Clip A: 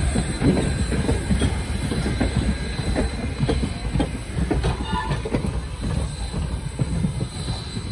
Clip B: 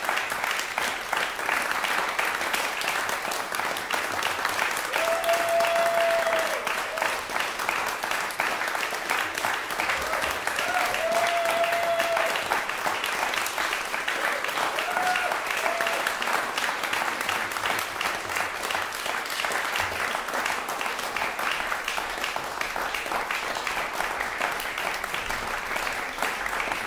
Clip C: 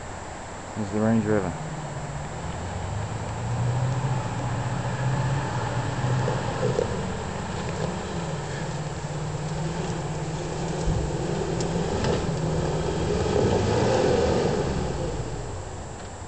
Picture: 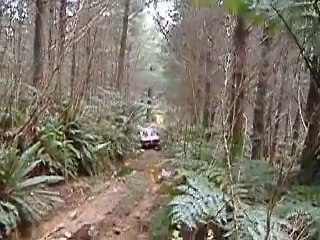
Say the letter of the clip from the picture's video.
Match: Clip C